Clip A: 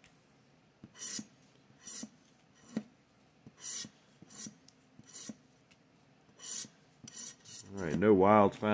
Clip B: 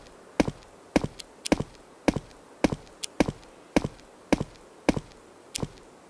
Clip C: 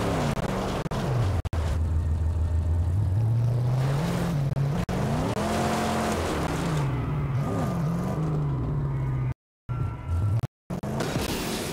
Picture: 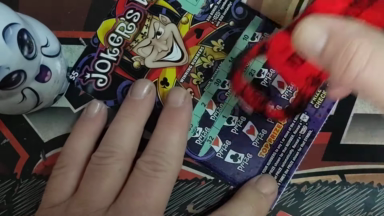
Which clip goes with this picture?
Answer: A